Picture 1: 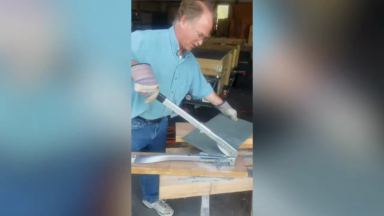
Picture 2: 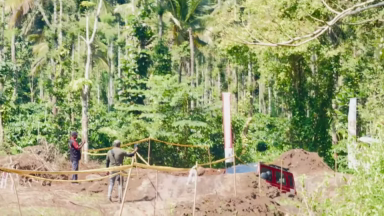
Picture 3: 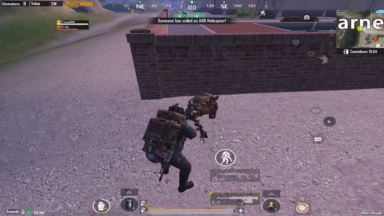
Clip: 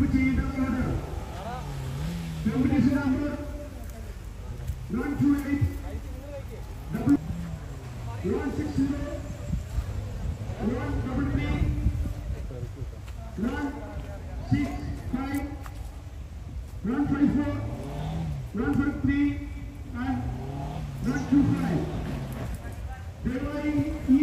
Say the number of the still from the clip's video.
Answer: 2